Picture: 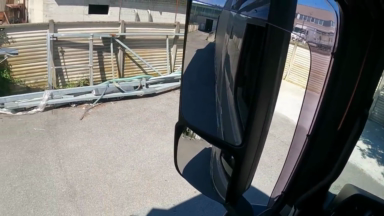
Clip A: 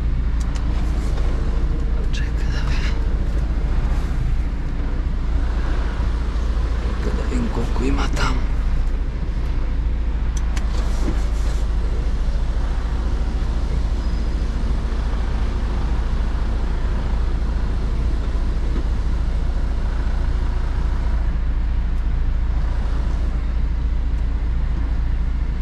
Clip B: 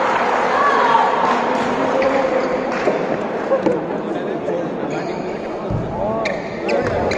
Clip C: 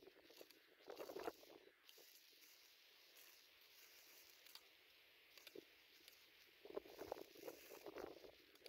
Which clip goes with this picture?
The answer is A